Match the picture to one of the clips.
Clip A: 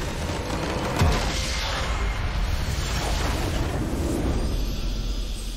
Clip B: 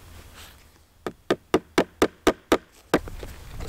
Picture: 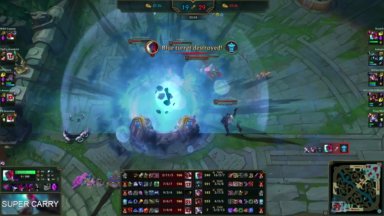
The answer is A